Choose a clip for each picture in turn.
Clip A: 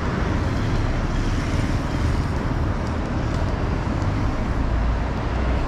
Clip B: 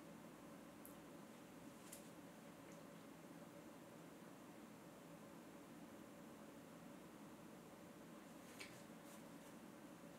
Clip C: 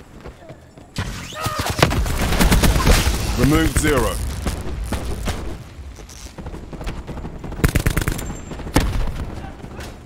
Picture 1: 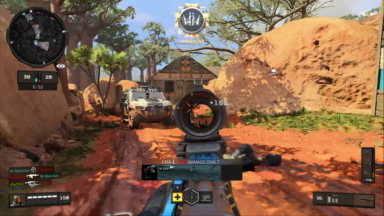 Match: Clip C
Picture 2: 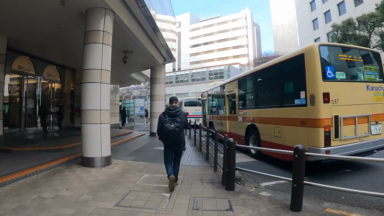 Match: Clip A